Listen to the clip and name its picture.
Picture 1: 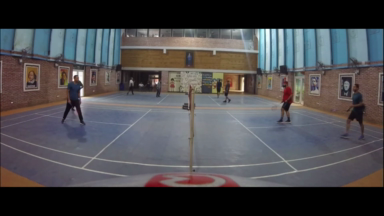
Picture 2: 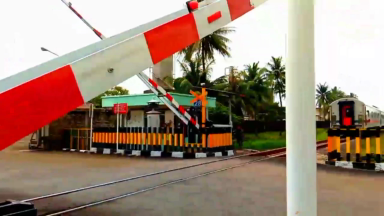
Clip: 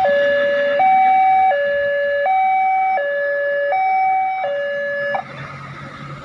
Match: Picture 2